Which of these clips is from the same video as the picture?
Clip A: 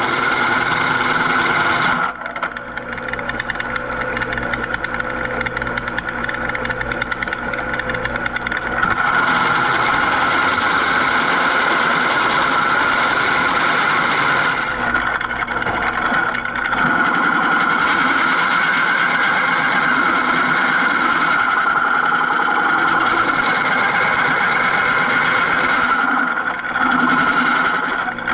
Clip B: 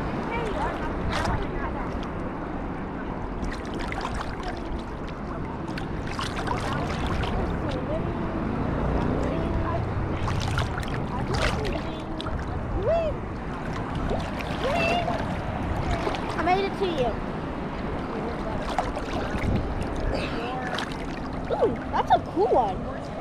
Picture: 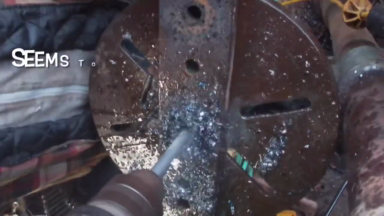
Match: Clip A